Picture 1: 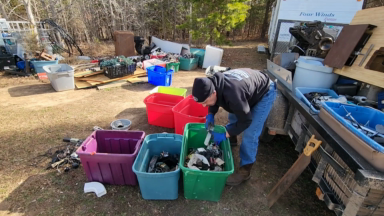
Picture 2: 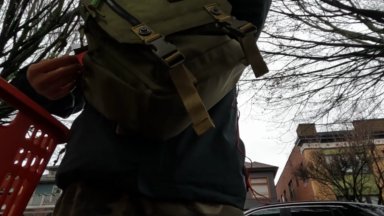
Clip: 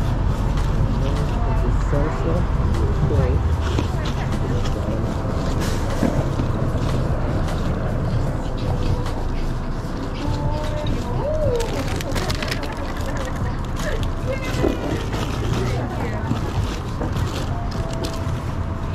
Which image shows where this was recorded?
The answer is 2